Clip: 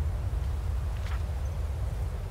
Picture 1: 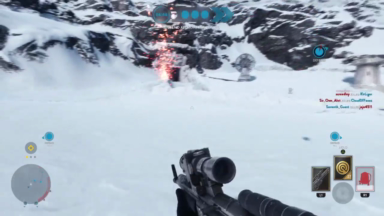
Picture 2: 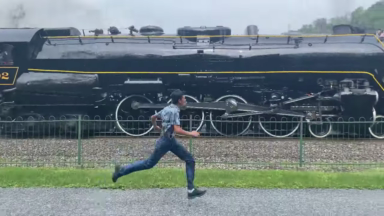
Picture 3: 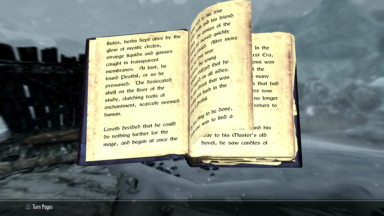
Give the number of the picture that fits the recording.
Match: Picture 3